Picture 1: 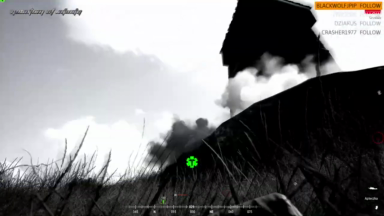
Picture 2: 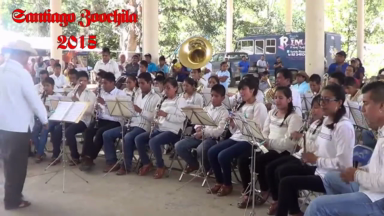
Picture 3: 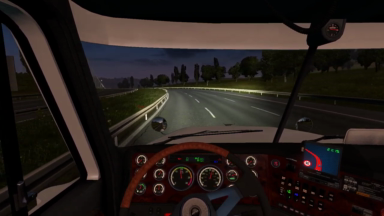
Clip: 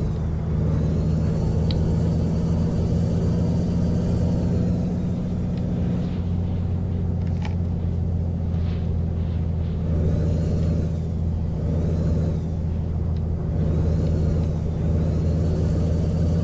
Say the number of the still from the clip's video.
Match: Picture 3